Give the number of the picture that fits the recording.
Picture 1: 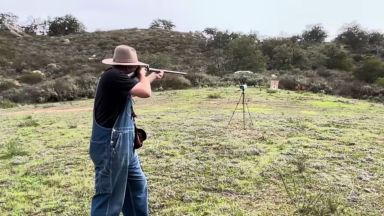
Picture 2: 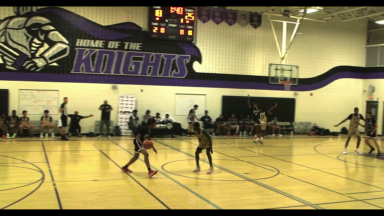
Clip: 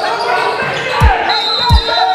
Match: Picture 2